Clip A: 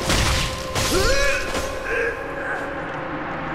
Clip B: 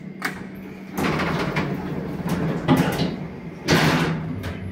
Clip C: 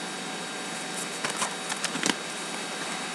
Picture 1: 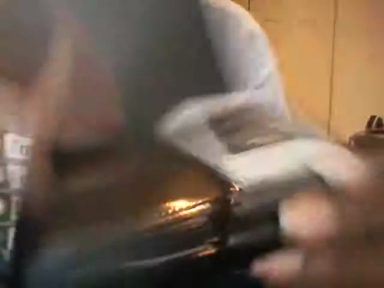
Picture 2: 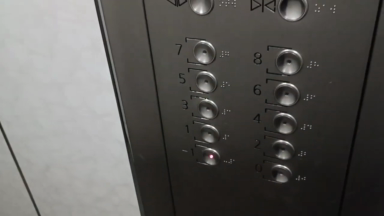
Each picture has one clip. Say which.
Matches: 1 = C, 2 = B